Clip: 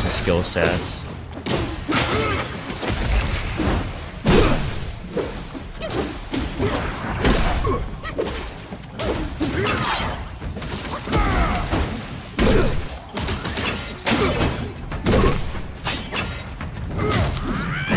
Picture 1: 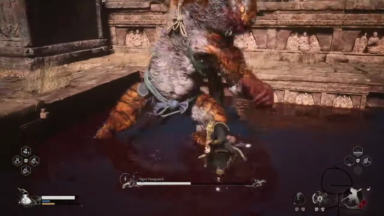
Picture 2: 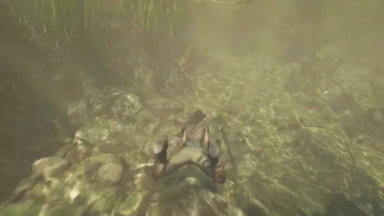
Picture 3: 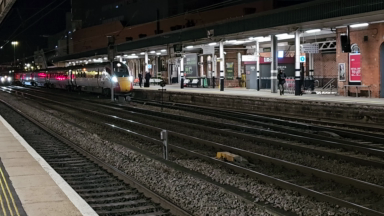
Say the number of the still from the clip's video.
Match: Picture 1